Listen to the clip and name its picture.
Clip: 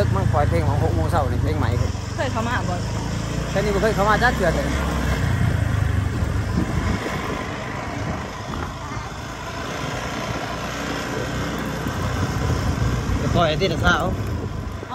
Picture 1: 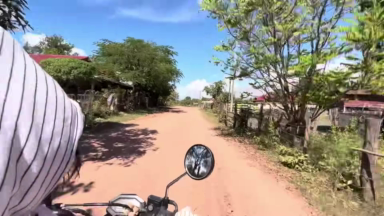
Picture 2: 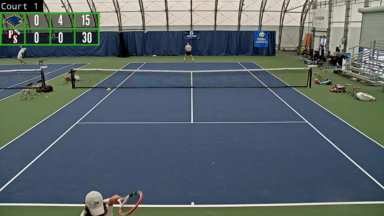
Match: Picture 1